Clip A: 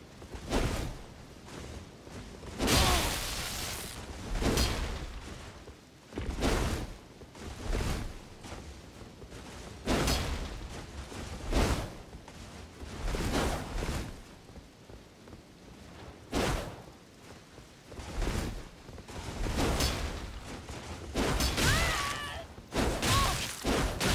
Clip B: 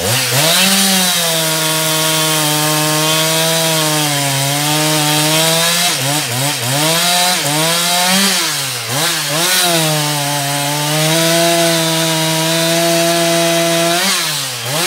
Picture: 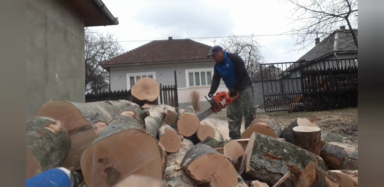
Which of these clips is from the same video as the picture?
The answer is B